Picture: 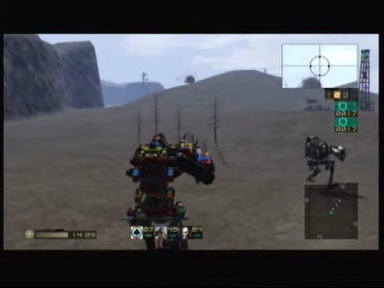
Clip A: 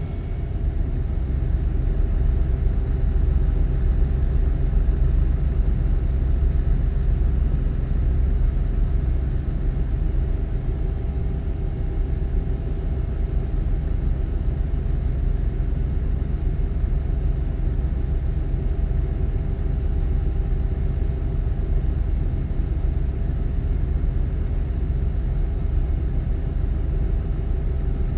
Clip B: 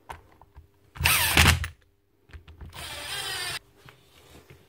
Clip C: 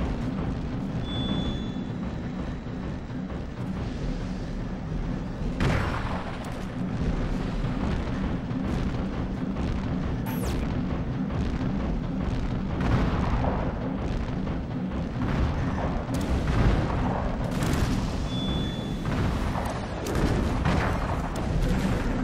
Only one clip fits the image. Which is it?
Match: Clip C